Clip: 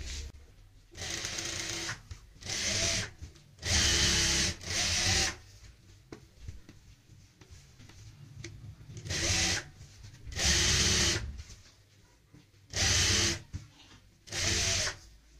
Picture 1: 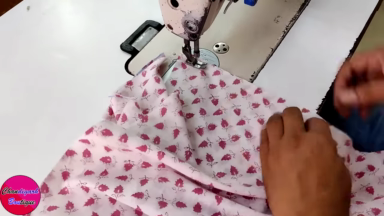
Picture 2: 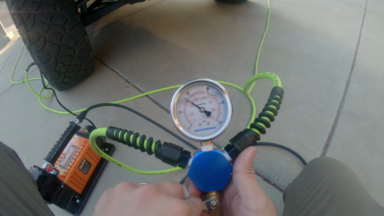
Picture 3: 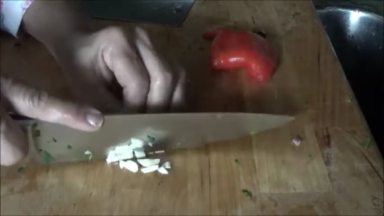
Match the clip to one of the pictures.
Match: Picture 1